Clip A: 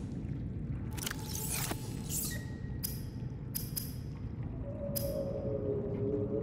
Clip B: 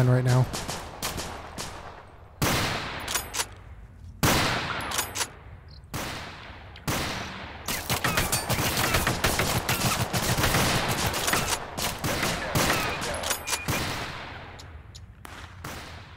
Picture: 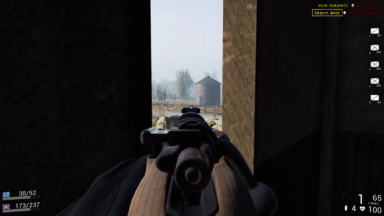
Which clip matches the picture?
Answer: B